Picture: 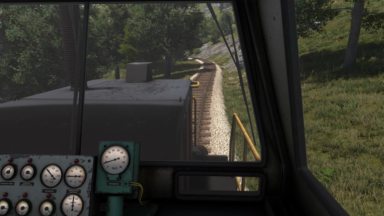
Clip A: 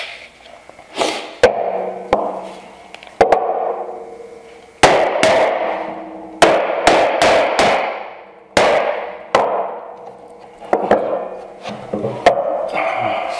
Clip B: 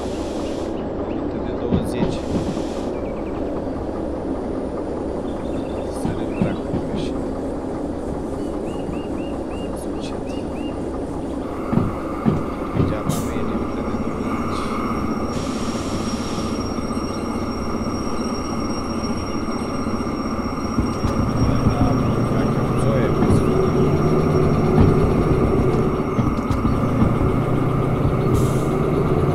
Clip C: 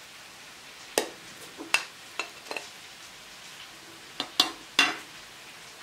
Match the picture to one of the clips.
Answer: B